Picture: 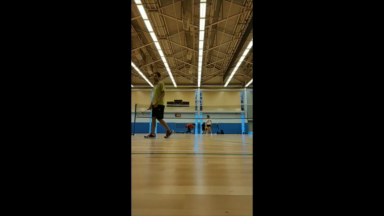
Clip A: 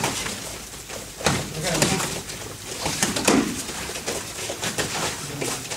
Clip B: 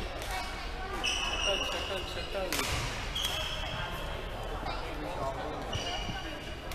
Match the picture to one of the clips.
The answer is B